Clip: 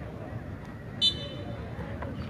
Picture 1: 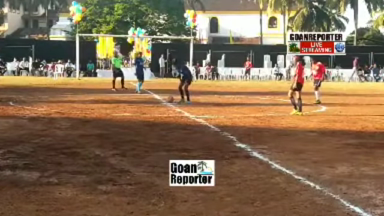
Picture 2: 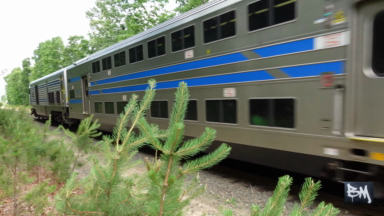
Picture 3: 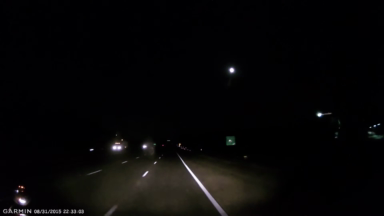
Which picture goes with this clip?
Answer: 1